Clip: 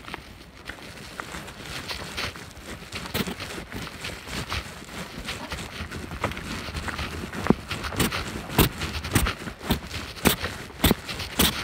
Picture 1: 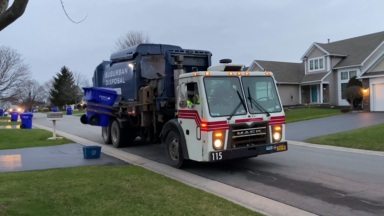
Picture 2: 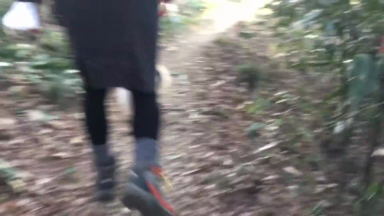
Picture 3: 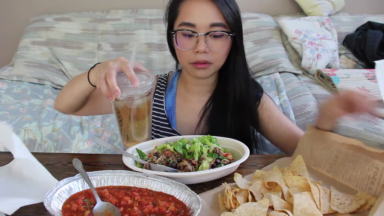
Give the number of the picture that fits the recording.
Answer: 2